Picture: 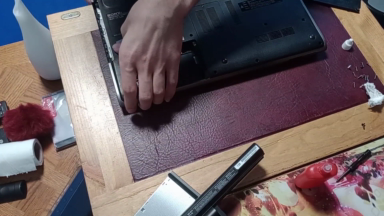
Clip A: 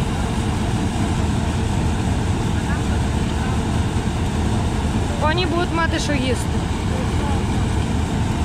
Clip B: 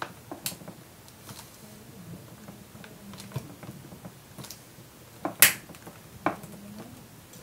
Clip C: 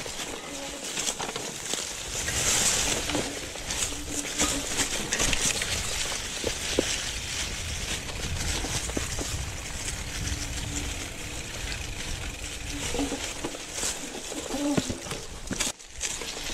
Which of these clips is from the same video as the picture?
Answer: B